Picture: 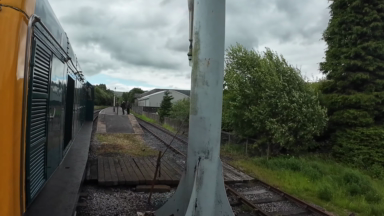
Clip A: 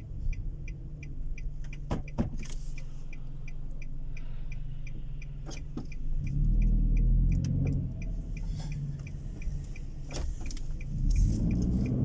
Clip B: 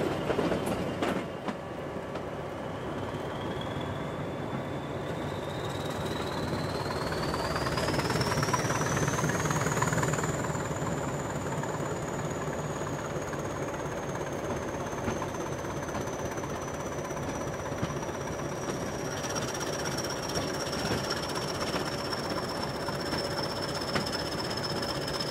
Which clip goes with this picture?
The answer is B